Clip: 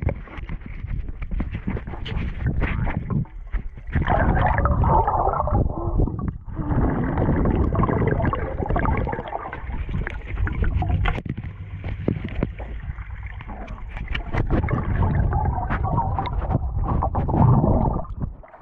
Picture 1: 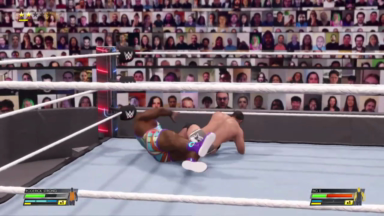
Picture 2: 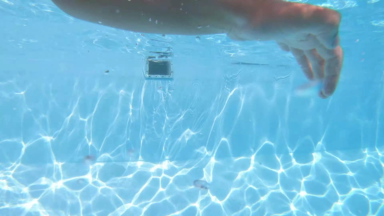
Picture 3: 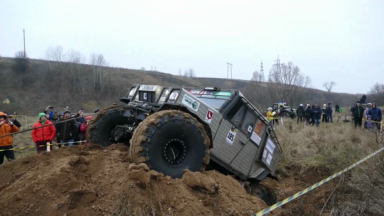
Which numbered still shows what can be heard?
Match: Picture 2